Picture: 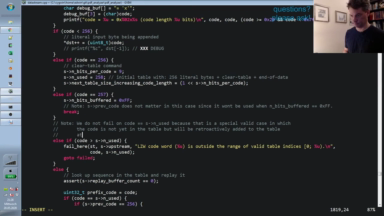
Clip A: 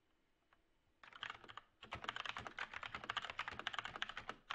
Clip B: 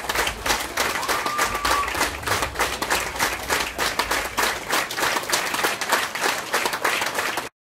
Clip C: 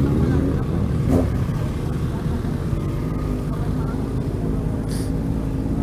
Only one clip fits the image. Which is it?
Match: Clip A